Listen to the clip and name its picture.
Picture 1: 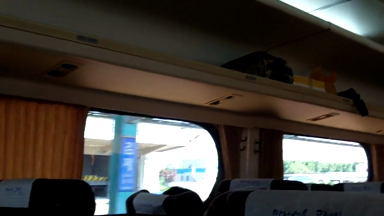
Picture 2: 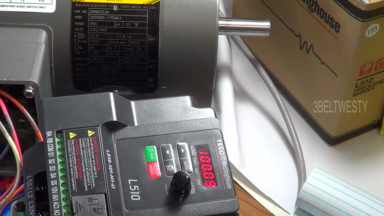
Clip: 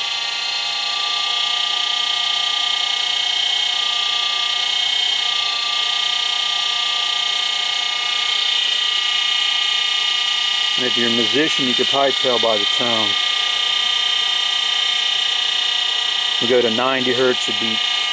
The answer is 2